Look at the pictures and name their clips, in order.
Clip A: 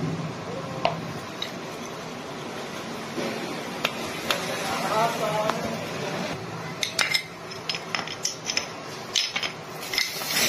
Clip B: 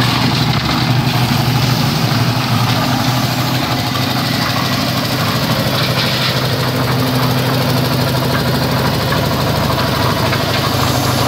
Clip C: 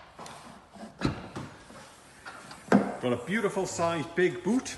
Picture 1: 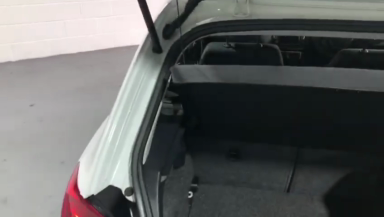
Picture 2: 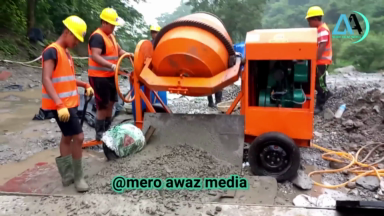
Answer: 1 C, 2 B